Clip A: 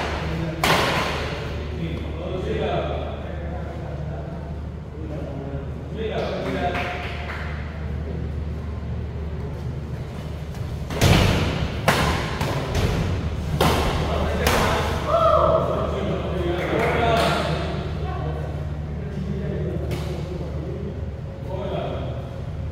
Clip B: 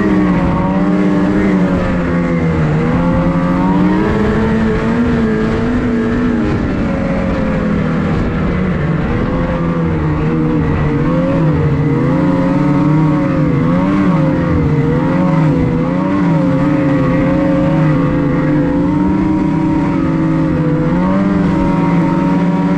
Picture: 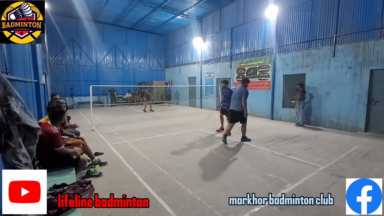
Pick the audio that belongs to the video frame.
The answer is A